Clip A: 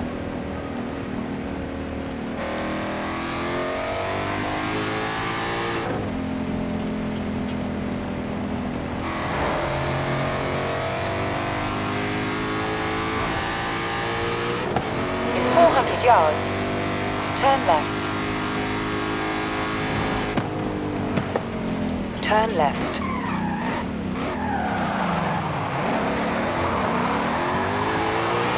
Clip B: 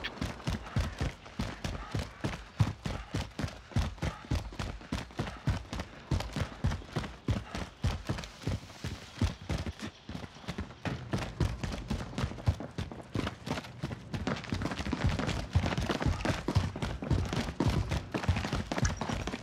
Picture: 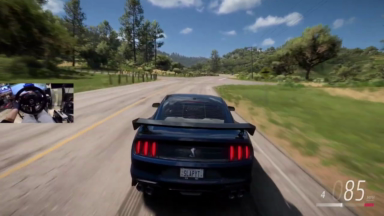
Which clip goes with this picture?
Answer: A